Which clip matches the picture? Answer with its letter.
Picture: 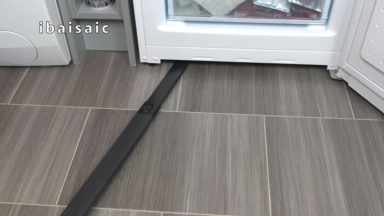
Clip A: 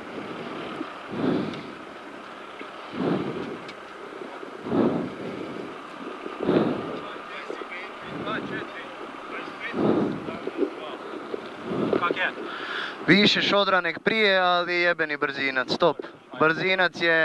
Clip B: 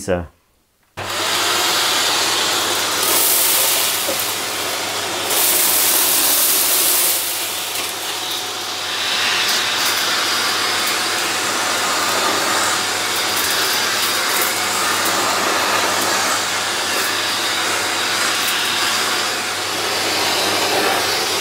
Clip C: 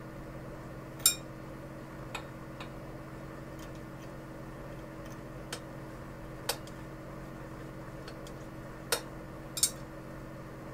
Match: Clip B